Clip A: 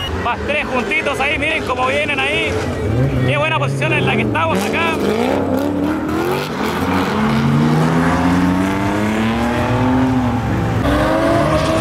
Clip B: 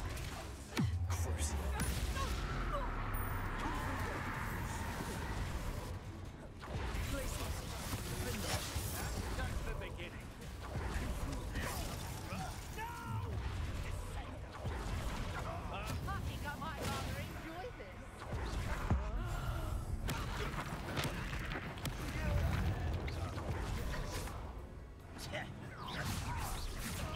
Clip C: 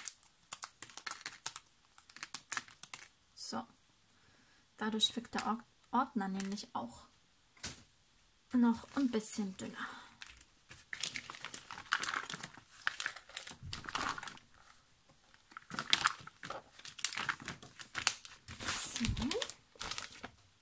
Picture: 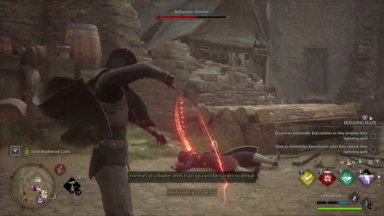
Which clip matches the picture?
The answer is B